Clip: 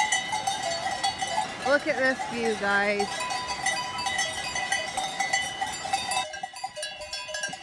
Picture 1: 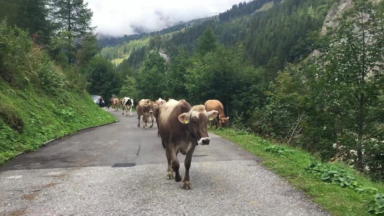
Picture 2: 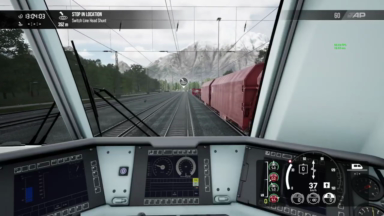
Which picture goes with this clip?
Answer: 1